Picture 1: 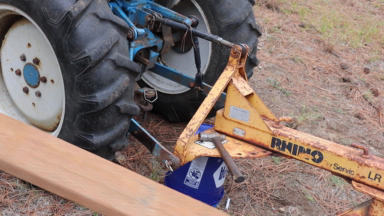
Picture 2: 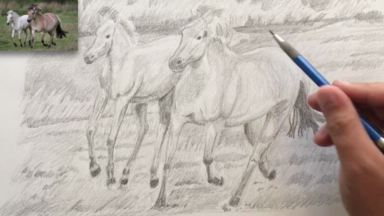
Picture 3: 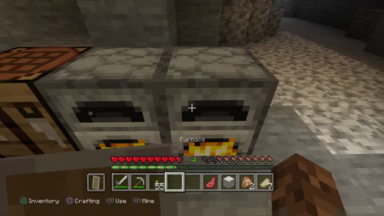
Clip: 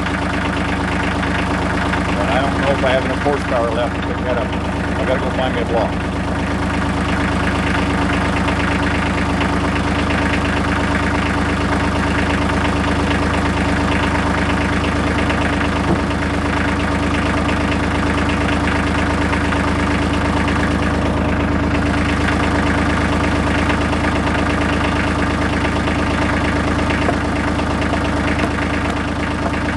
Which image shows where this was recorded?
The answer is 1